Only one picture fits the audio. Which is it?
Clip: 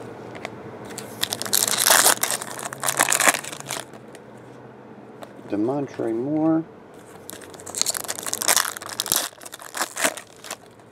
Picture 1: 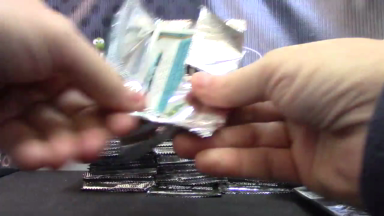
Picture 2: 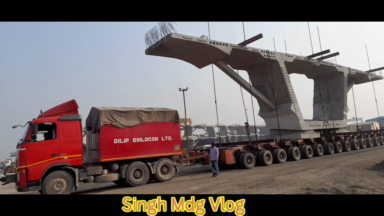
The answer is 1